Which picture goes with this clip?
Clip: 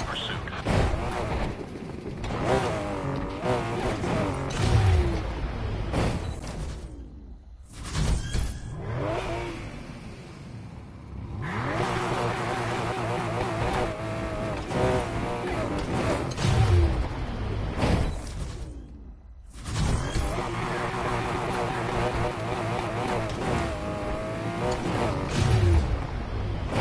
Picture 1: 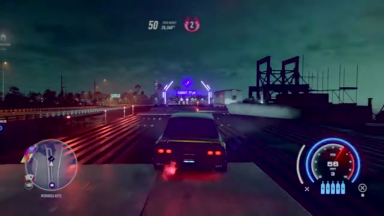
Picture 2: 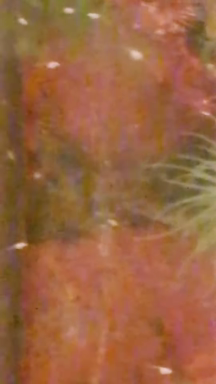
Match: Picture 1